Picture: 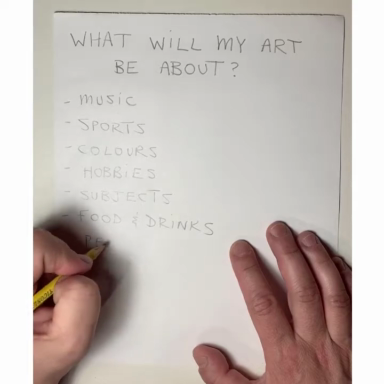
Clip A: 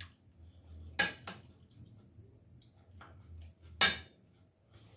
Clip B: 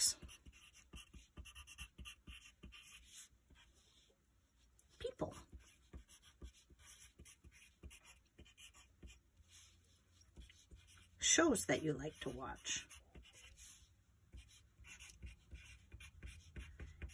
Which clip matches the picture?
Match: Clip B